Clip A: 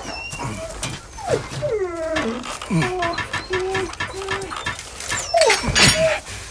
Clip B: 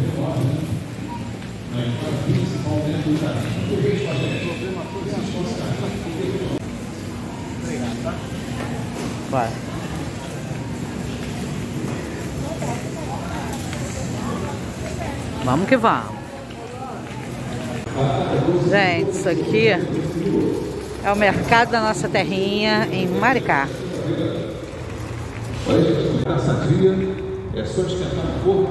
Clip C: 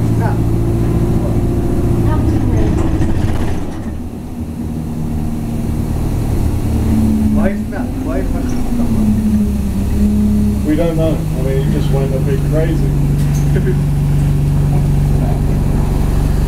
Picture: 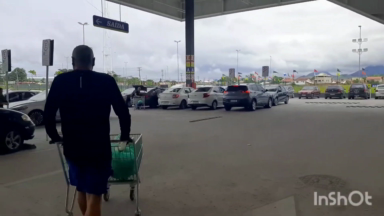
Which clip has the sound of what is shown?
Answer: B